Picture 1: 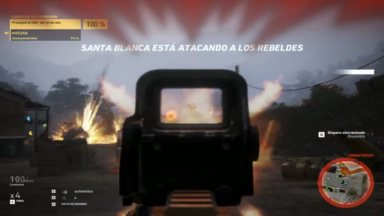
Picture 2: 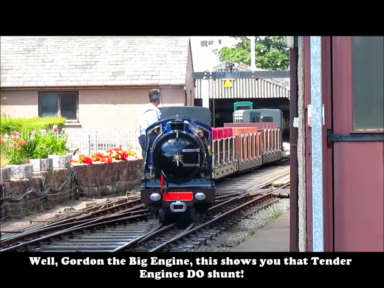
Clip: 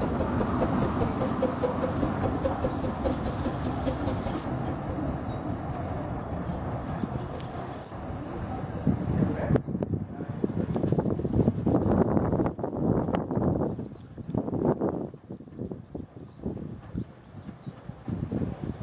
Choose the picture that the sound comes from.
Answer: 2